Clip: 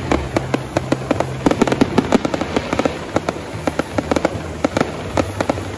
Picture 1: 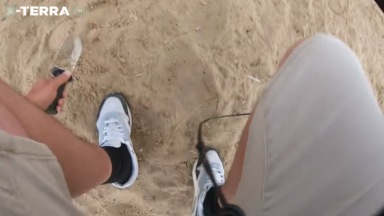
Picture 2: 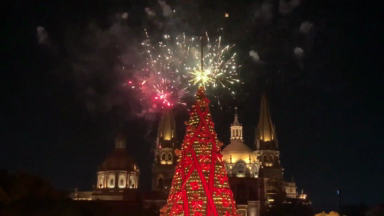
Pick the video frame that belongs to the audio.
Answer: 2